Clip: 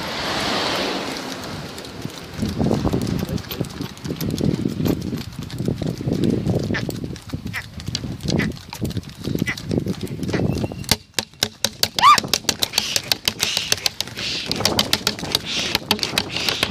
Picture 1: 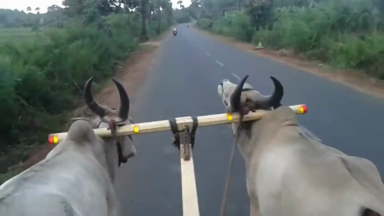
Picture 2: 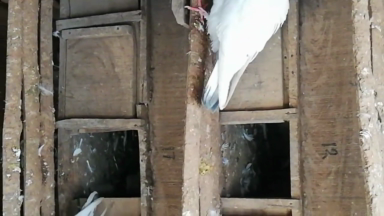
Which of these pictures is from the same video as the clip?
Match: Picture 1